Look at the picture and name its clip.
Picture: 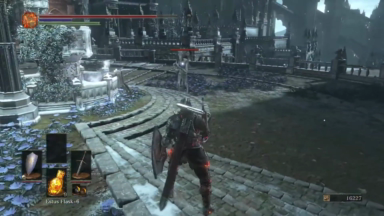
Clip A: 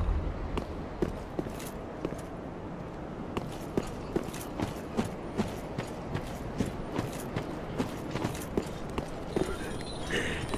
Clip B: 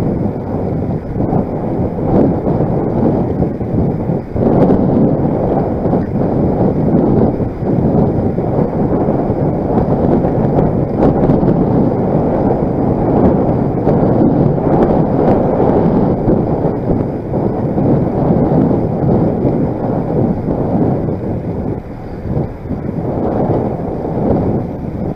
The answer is A